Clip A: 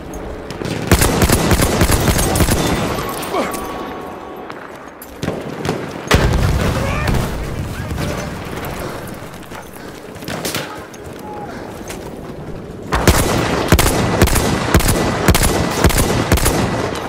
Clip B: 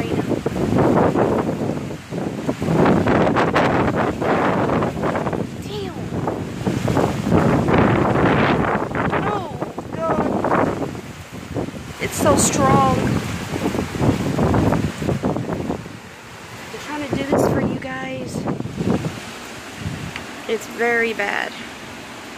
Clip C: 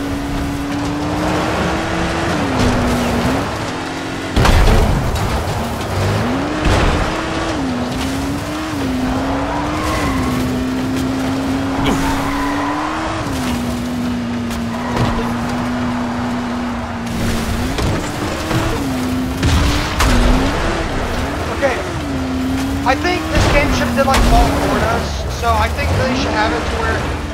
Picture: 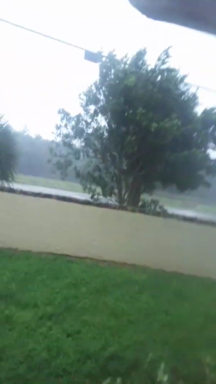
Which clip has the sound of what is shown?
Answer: B